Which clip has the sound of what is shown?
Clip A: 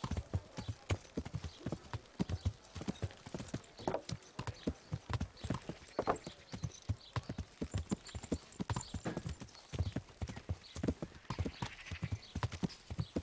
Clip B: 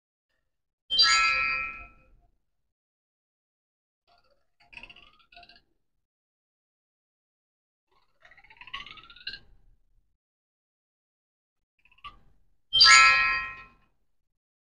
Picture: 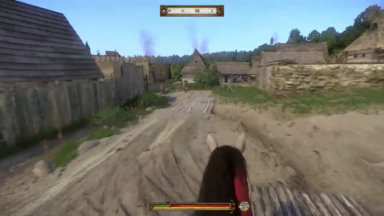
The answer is A